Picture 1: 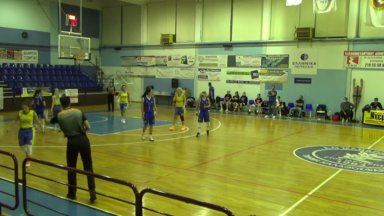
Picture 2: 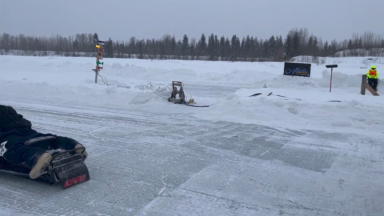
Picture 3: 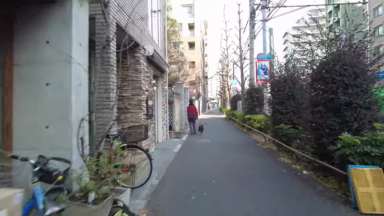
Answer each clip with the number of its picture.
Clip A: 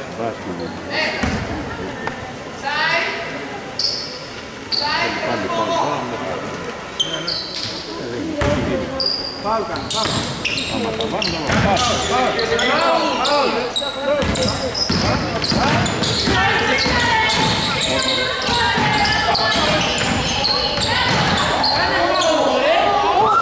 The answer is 1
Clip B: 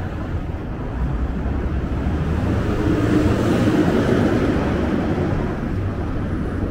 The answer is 3